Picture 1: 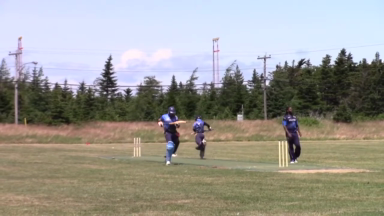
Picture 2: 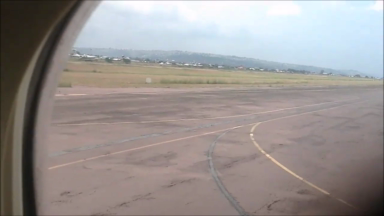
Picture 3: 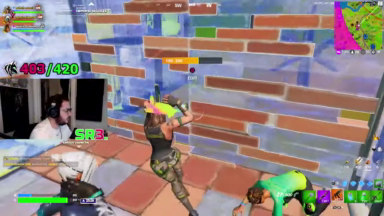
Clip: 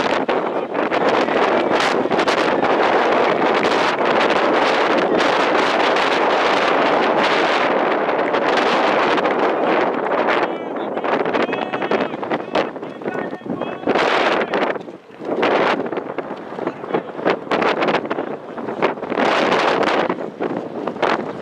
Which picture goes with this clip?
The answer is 1